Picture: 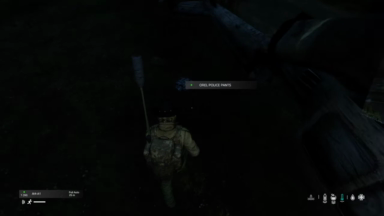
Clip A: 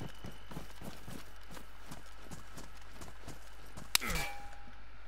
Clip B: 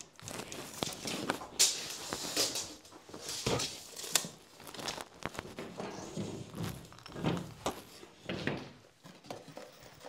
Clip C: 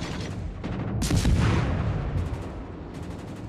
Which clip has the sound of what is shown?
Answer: A